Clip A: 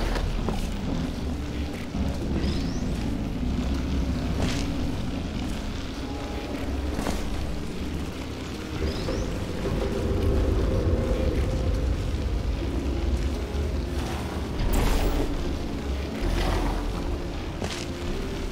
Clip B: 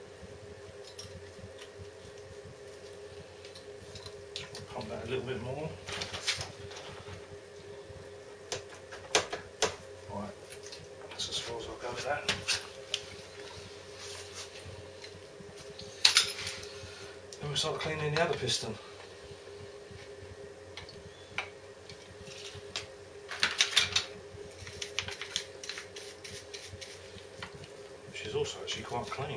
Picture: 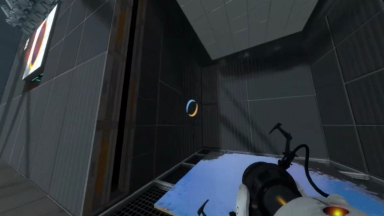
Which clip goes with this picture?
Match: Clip A